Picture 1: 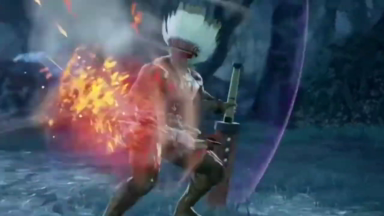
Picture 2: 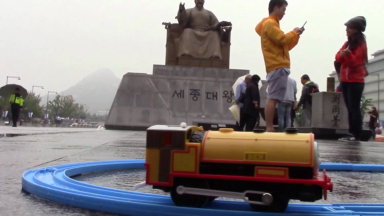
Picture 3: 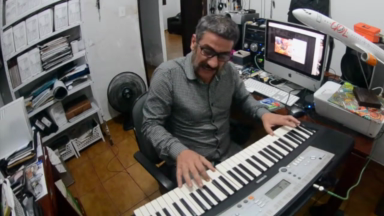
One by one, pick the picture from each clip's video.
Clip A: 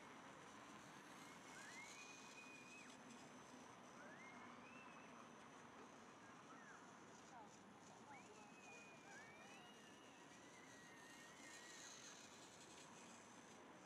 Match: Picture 2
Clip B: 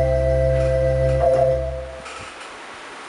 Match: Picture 3